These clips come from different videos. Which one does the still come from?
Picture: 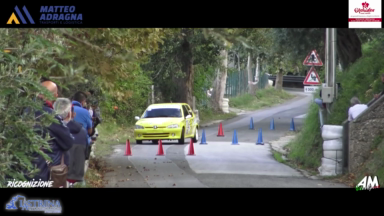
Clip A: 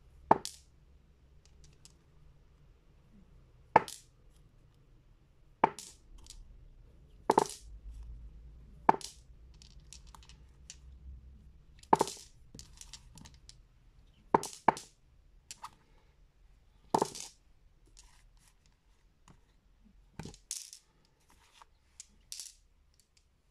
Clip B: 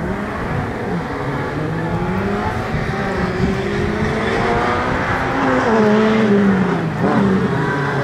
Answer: B